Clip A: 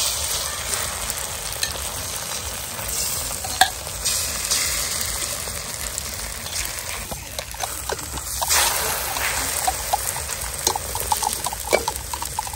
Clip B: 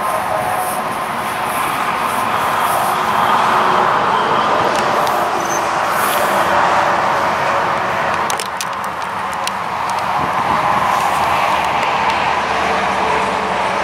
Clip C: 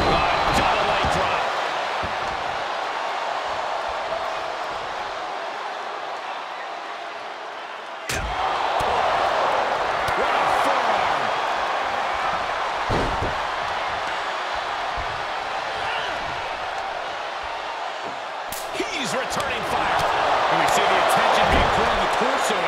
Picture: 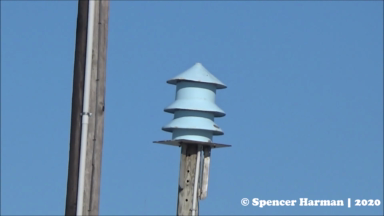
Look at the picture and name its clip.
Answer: B